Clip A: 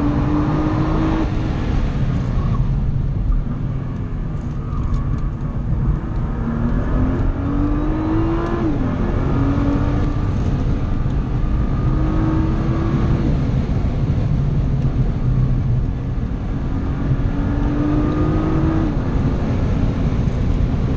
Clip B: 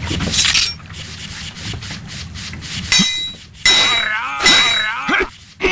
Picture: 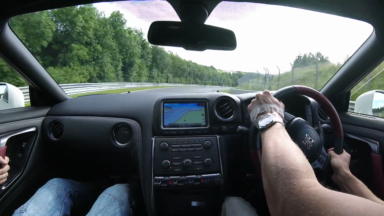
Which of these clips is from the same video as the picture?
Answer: A